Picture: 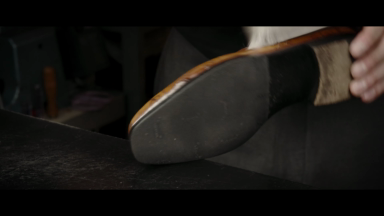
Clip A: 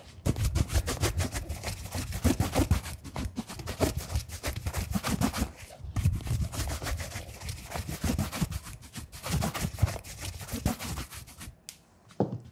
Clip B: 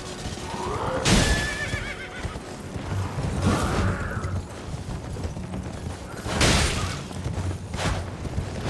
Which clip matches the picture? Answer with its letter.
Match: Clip A